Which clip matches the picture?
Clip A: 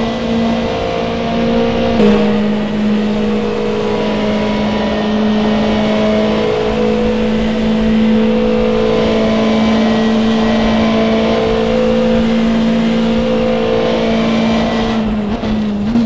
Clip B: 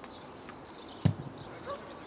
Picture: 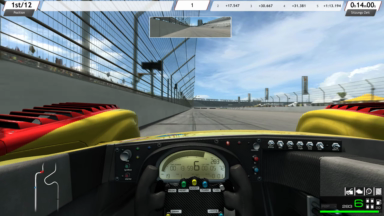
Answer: A